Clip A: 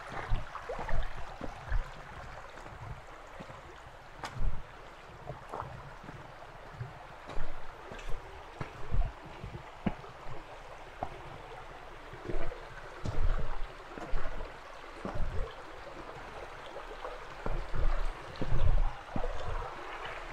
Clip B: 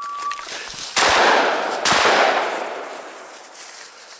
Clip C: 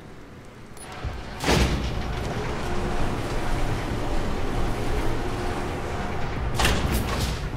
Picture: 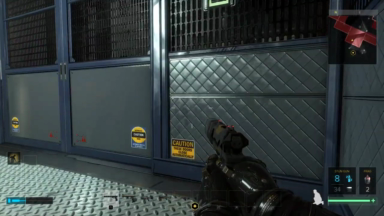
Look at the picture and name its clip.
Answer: C